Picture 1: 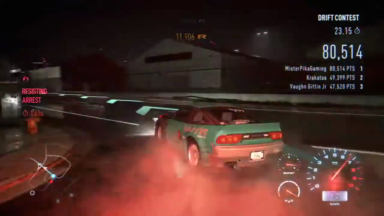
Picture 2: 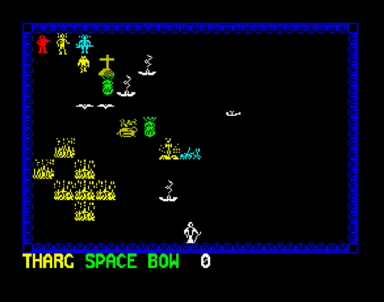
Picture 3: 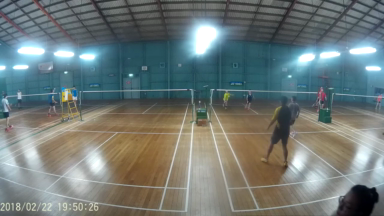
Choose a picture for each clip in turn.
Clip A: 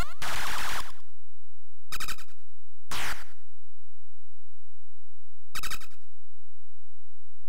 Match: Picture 2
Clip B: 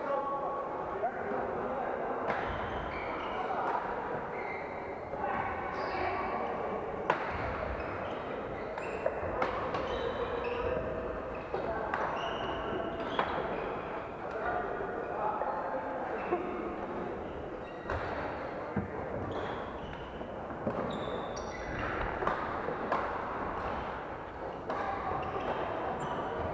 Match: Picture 3